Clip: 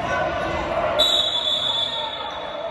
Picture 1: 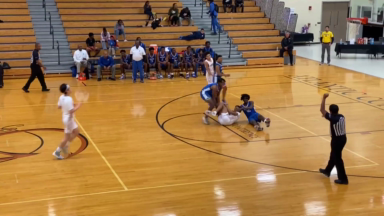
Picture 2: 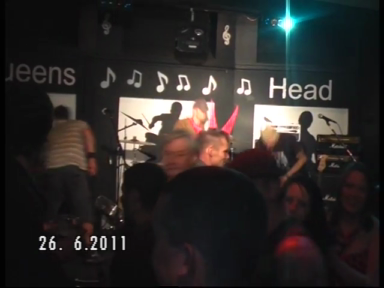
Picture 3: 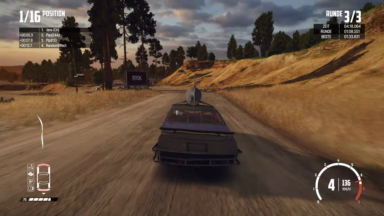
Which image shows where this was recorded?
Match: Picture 1